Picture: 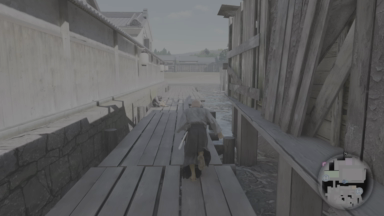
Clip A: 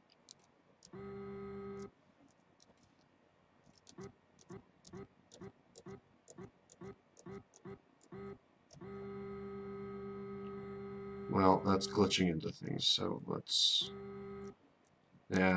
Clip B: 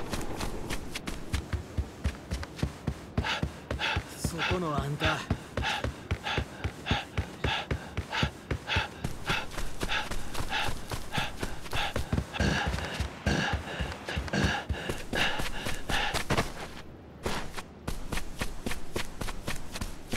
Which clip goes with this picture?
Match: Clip B